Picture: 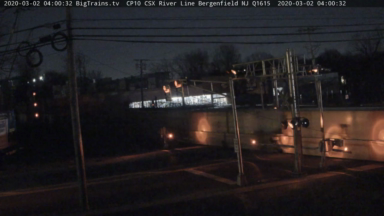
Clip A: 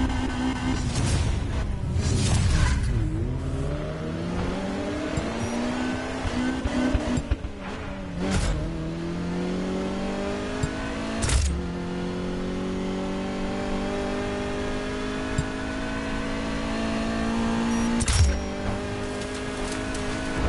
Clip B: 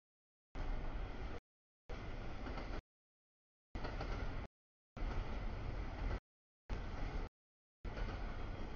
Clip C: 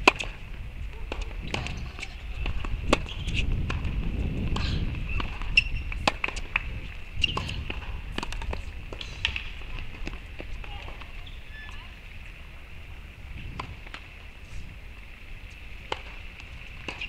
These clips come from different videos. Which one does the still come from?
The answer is B